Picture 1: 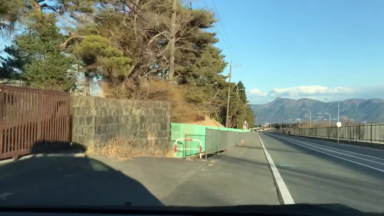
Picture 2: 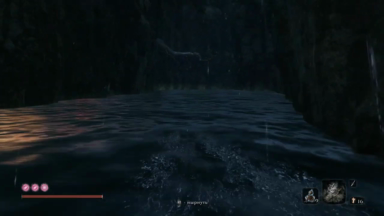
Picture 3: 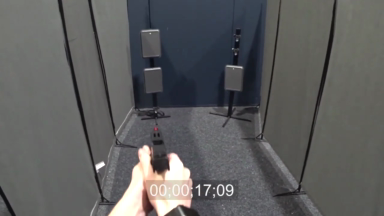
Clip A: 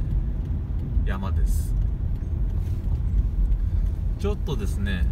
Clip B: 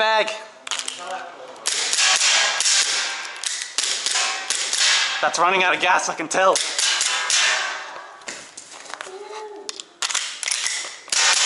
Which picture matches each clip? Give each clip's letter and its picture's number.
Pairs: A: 1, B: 3